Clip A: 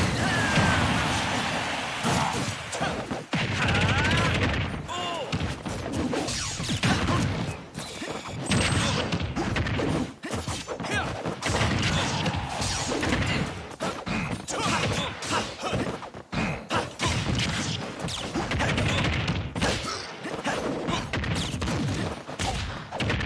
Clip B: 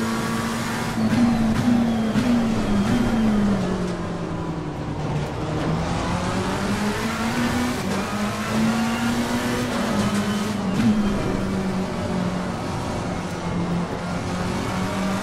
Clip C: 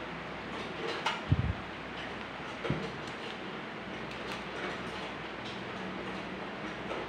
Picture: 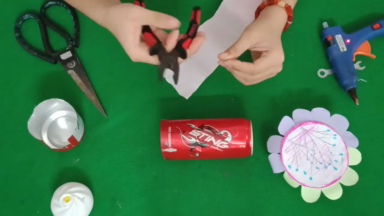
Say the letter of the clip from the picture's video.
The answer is C